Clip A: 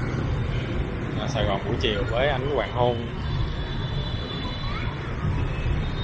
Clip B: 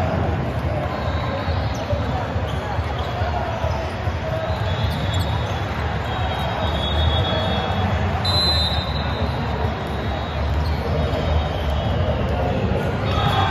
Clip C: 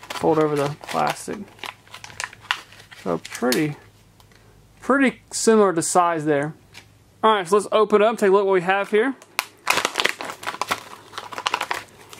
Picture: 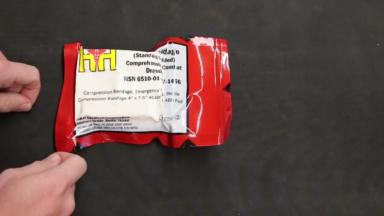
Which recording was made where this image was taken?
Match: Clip C